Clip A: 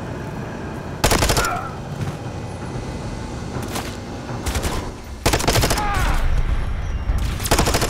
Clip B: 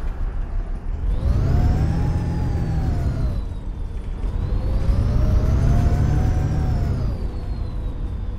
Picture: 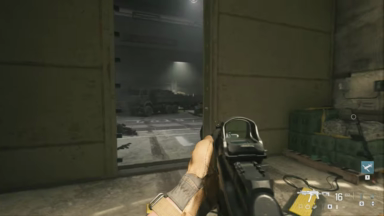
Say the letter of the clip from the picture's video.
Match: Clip A